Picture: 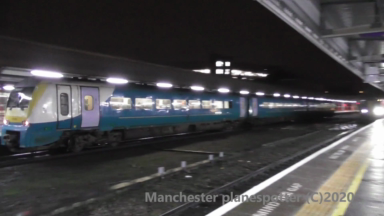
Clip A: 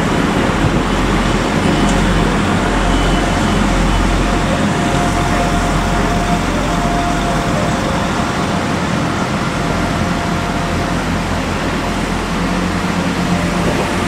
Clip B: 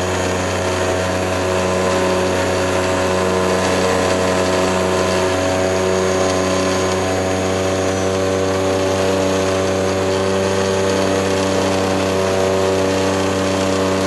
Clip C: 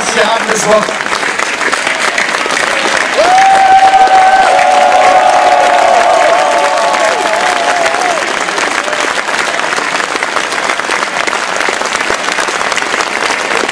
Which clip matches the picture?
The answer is A